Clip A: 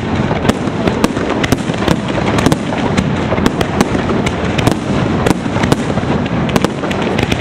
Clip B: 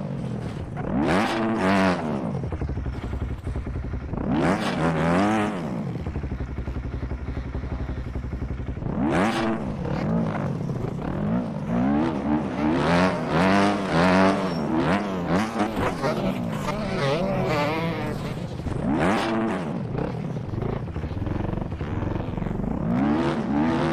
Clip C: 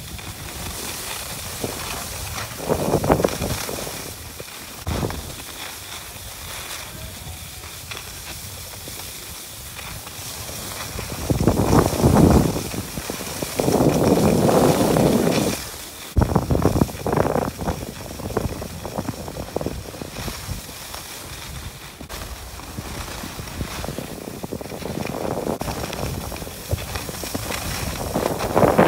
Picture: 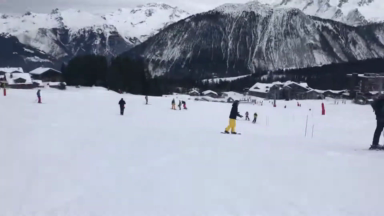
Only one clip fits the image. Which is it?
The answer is C